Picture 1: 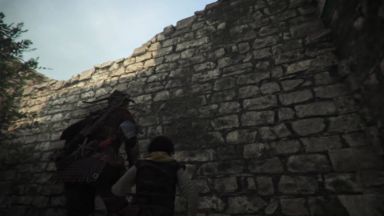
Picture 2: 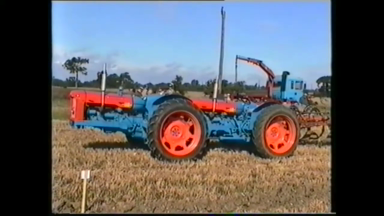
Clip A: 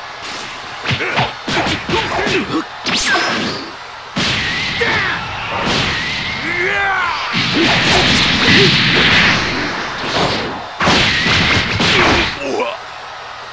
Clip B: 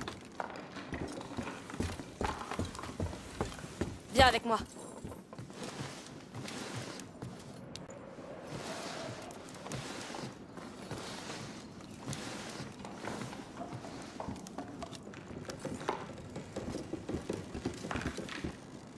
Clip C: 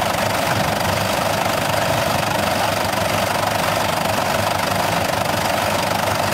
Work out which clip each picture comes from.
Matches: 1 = B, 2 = C